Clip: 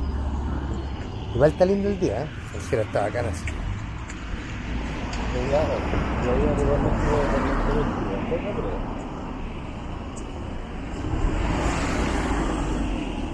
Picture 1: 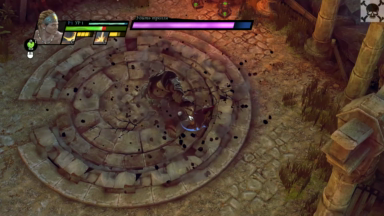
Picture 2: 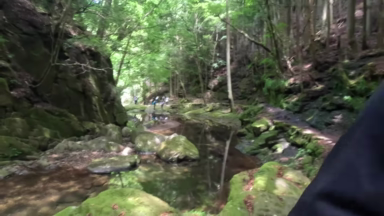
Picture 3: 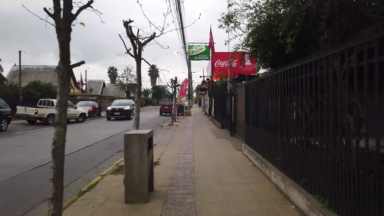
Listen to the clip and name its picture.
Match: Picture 3